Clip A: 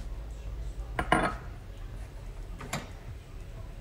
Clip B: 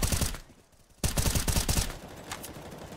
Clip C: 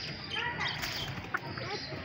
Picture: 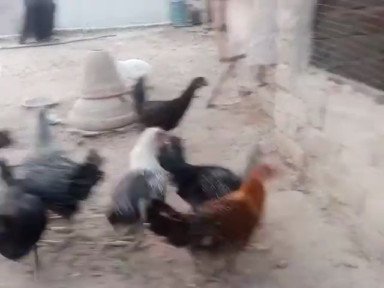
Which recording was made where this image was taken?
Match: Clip C